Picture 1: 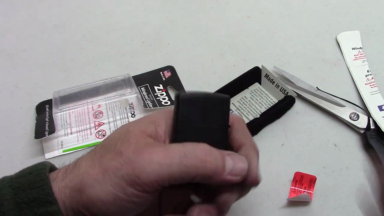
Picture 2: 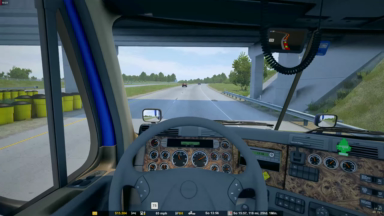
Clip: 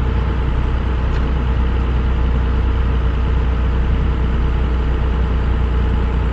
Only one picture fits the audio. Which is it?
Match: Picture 2